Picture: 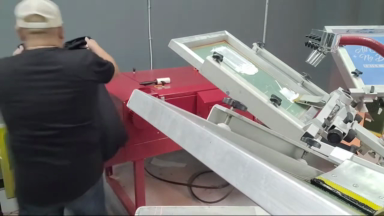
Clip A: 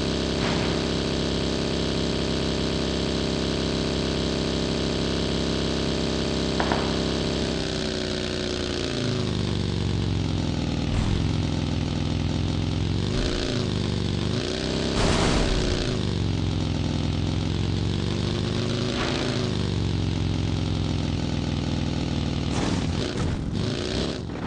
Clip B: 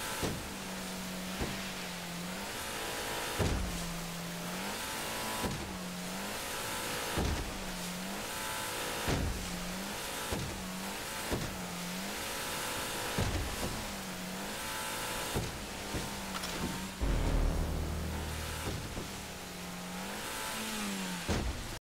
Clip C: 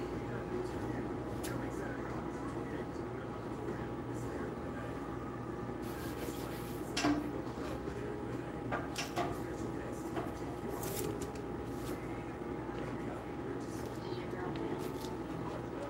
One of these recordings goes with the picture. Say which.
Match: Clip C